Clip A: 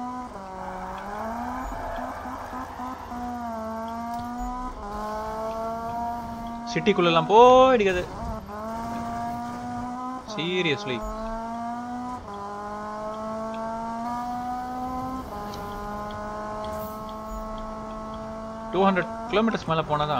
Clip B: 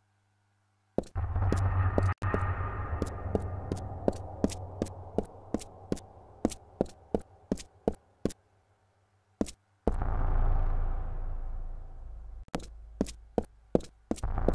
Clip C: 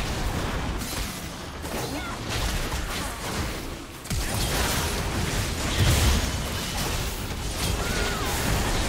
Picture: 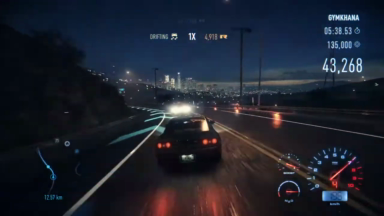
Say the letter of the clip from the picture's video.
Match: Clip A